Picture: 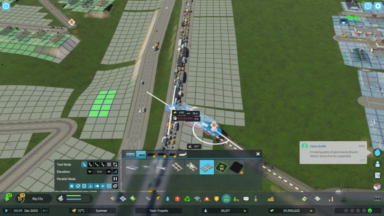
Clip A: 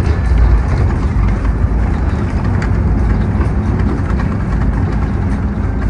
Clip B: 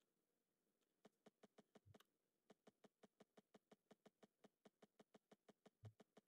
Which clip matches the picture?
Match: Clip B